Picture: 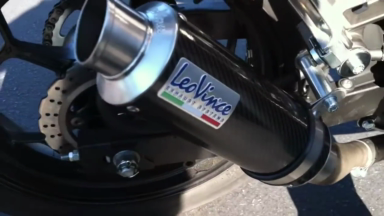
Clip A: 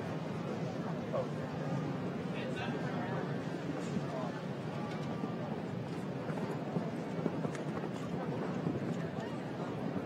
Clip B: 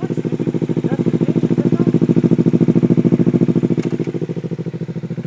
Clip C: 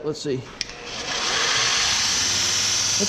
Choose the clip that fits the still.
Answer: B